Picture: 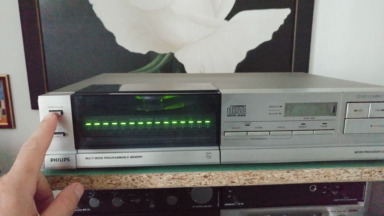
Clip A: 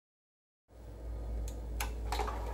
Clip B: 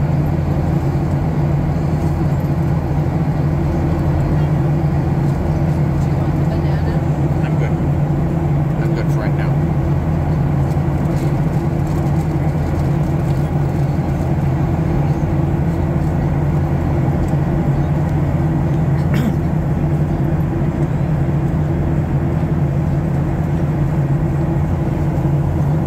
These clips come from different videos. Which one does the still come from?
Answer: A